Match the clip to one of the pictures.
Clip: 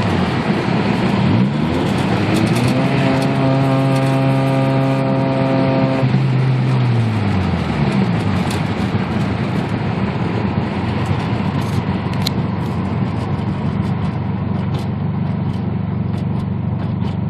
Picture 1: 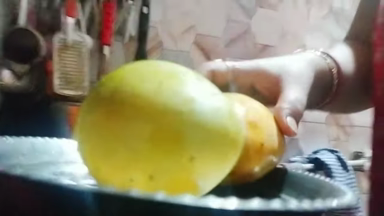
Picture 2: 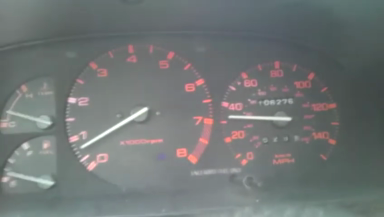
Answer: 2